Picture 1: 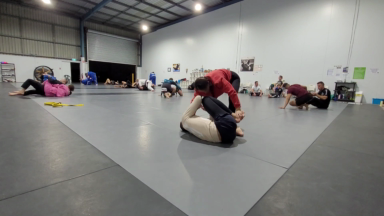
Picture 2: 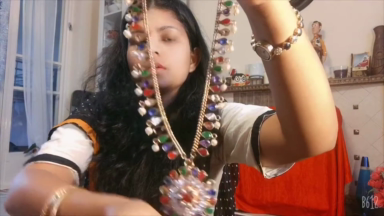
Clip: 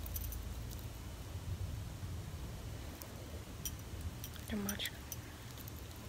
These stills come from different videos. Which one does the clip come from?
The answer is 2